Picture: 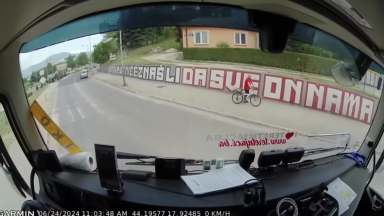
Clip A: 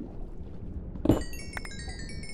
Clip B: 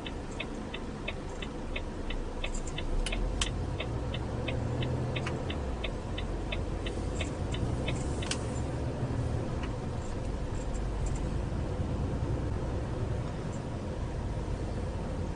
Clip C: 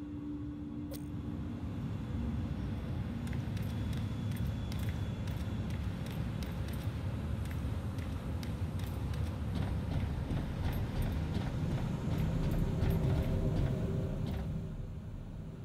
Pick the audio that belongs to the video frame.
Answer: B